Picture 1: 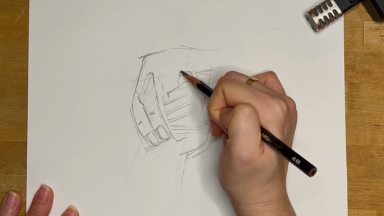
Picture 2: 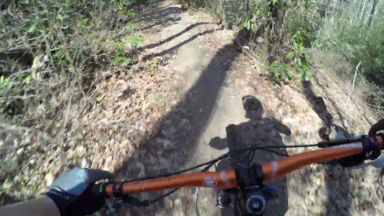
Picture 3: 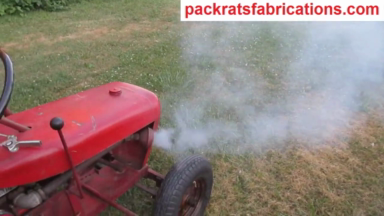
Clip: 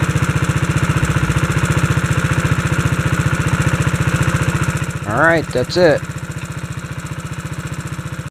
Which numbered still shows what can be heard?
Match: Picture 3